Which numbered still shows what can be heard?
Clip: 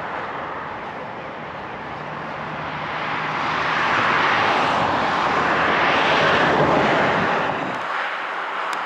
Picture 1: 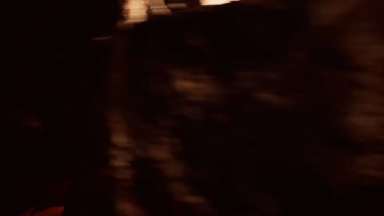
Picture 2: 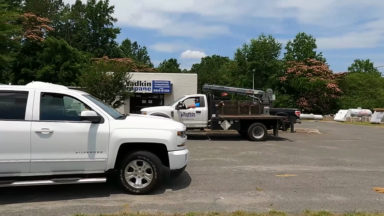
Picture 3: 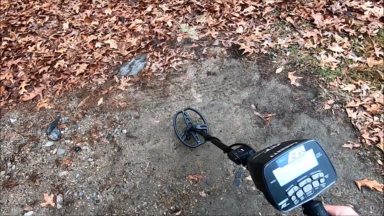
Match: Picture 2